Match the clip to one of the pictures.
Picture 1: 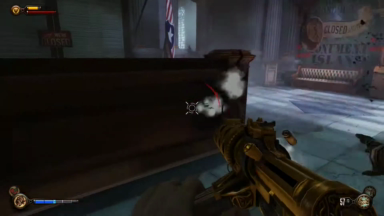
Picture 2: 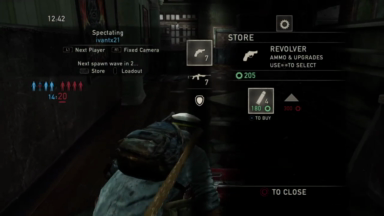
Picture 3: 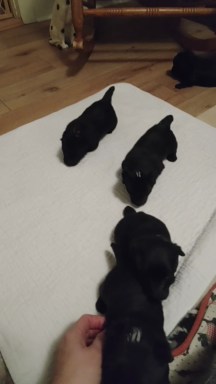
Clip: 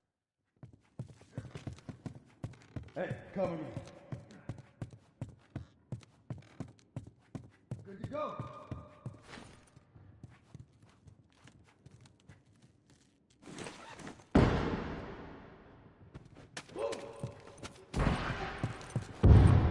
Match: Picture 2